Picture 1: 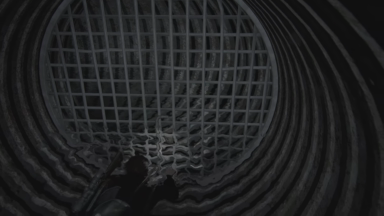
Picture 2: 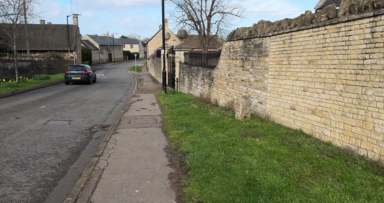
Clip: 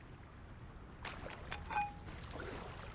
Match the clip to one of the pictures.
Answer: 1